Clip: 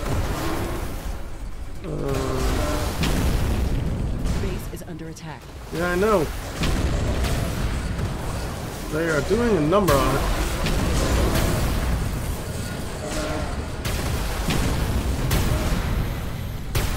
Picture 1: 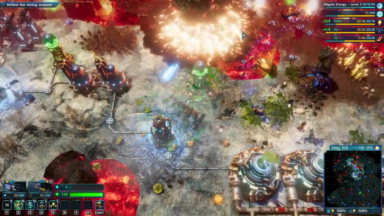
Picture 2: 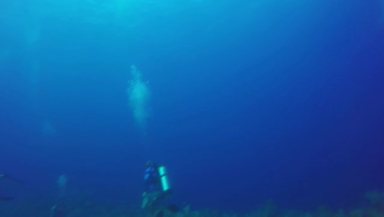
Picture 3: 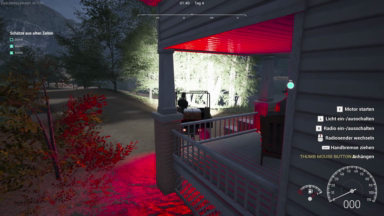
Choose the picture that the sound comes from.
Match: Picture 1